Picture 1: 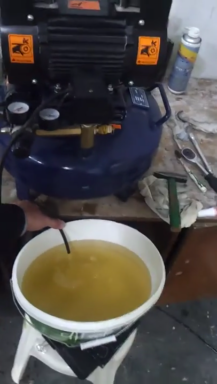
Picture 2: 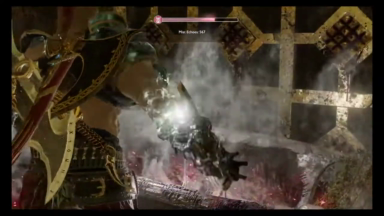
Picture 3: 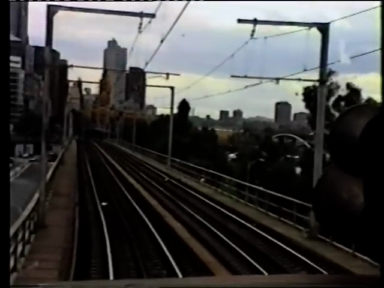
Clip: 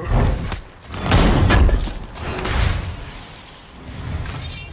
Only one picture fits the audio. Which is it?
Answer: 2